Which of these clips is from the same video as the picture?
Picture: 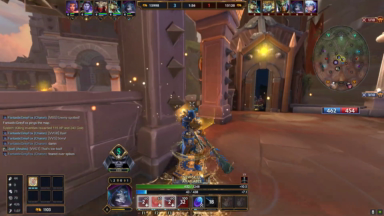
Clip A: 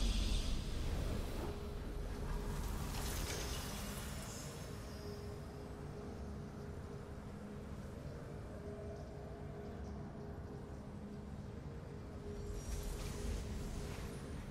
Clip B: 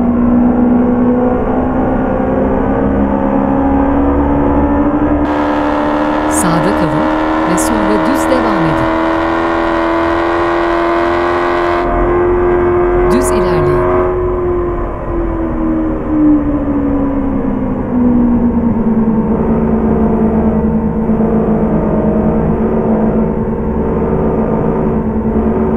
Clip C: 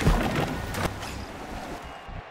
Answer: C